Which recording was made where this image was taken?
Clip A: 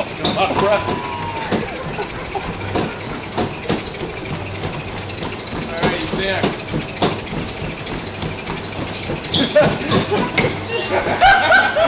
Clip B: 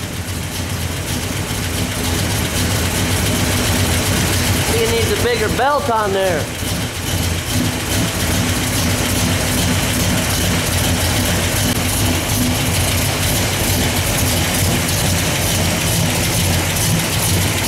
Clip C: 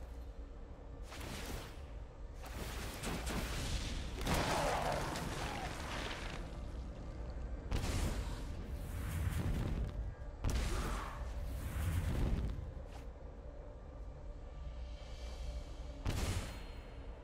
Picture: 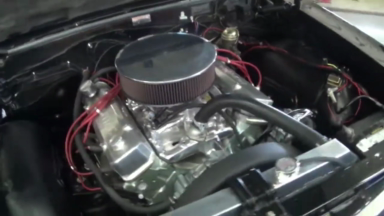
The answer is B